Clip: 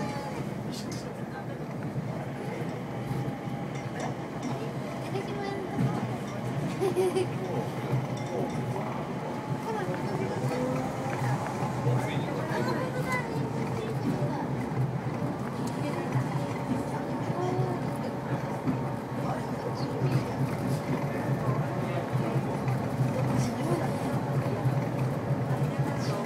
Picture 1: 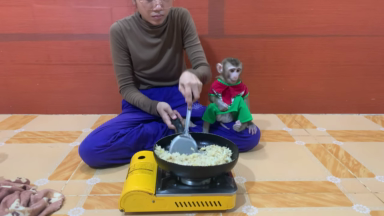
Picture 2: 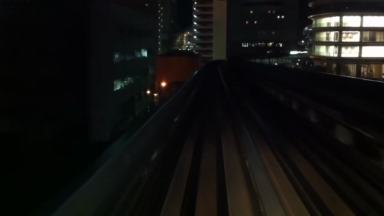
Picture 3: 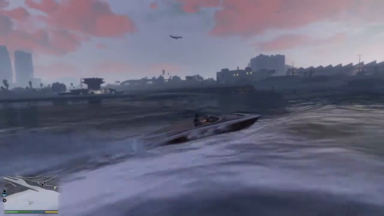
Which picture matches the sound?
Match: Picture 2